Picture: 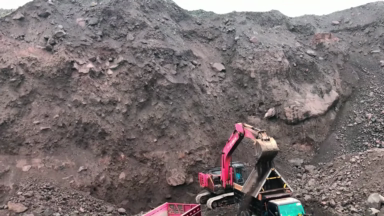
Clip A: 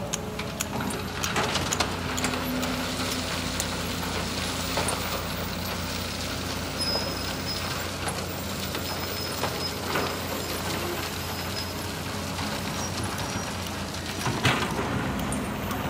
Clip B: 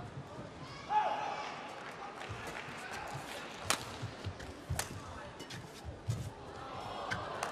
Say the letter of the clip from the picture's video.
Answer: A